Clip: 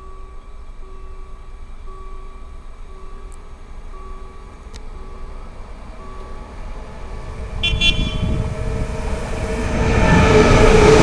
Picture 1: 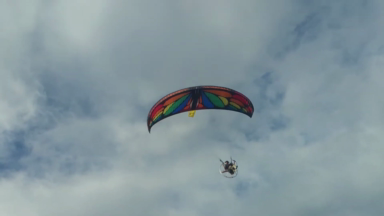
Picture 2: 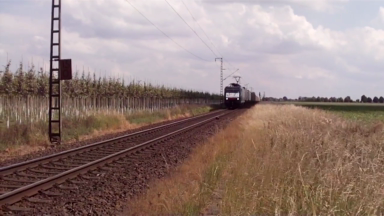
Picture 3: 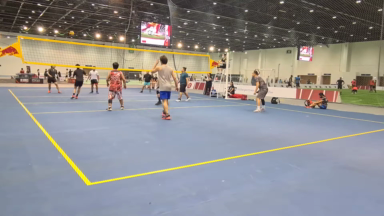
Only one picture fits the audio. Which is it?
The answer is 2